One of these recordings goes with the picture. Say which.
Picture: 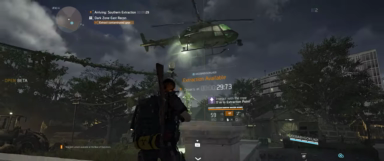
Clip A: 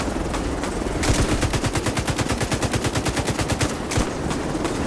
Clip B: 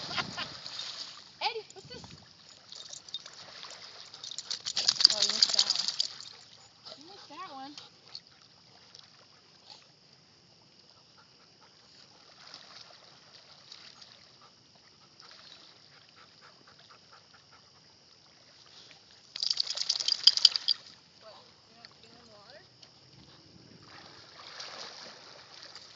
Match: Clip A